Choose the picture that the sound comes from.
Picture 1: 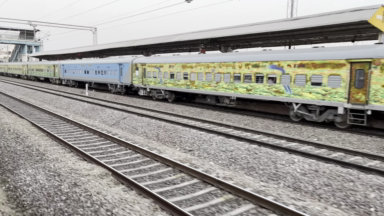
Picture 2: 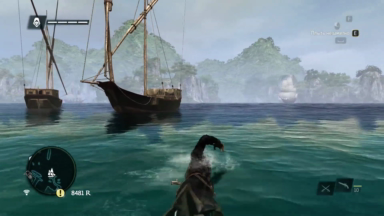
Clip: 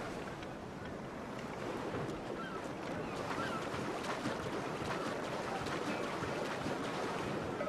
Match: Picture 2